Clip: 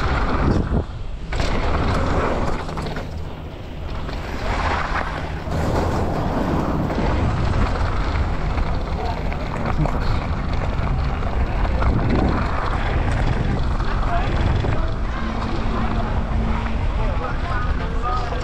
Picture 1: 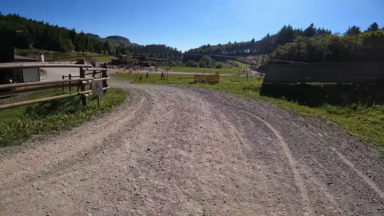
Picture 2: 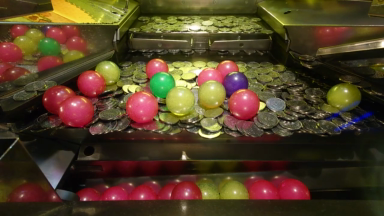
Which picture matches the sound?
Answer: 1